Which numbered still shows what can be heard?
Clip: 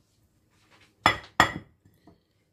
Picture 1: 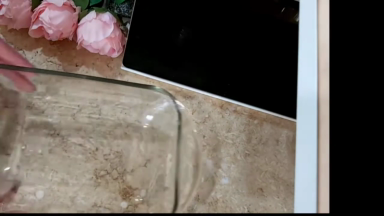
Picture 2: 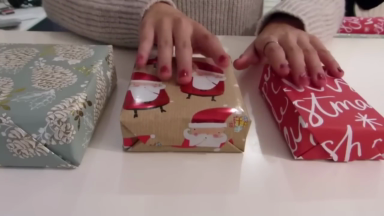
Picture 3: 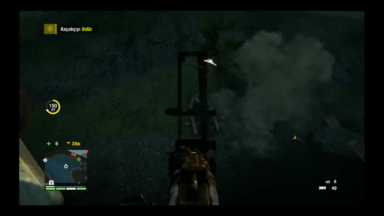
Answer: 1